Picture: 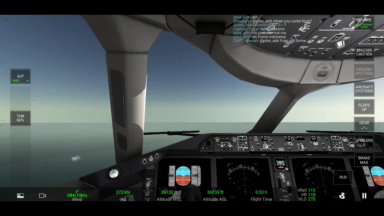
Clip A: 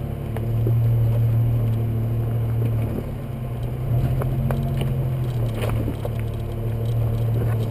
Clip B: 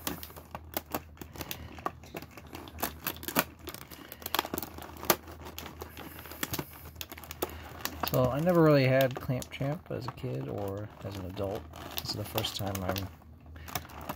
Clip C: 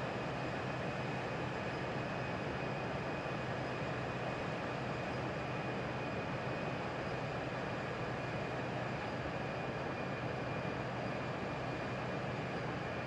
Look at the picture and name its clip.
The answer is C